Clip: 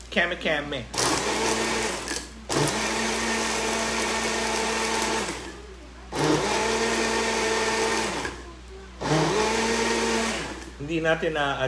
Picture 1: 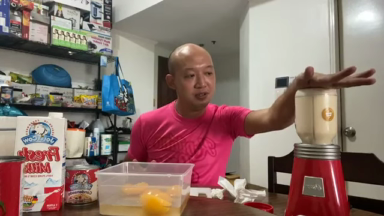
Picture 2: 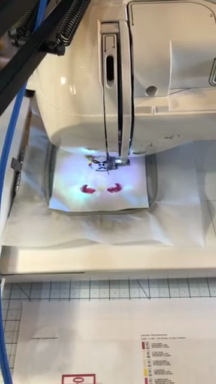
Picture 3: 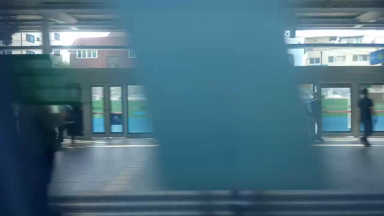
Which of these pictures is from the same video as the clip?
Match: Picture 1